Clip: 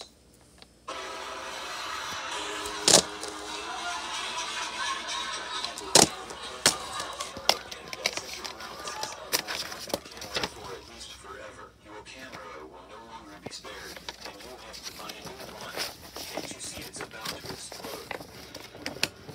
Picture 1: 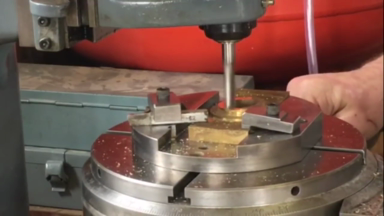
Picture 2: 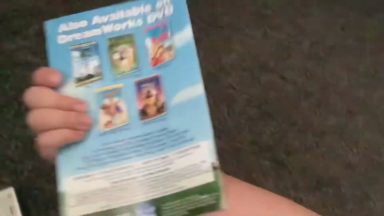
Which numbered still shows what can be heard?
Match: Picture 2